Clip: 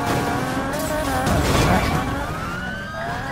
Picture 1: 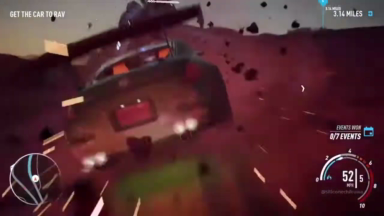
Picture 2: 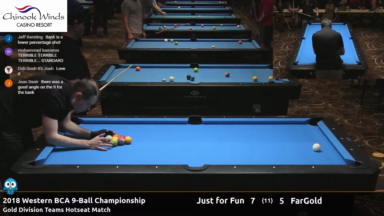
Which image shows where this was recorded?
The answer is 1